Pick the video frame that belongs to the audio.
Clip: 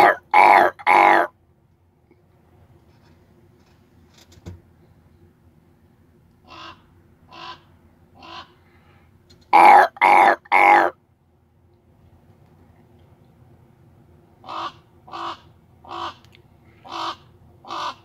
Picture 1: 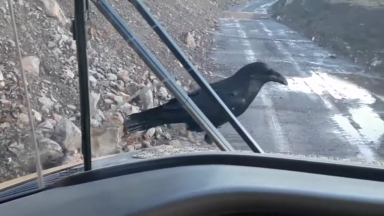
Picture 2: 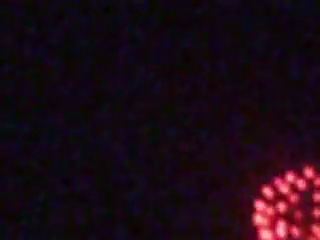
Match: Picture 1